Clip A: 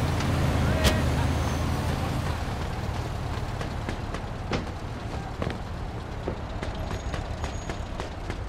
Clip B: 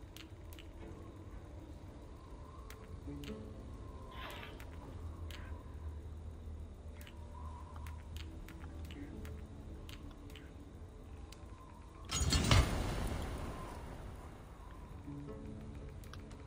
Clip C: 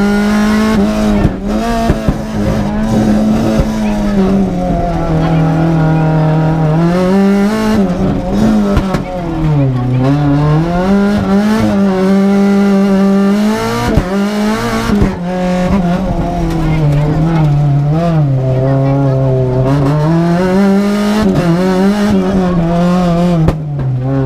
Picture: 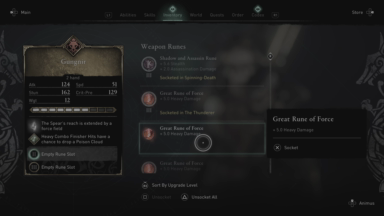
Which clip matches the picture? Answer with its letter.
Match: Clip B